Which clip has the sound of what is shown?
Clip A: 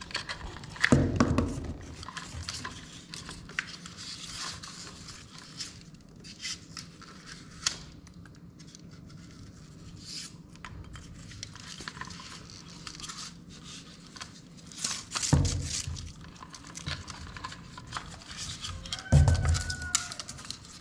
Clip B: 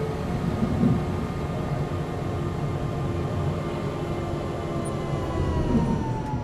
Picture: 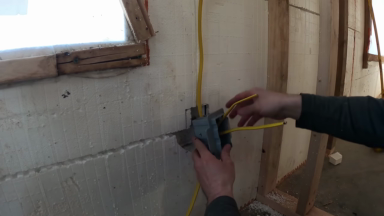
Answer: A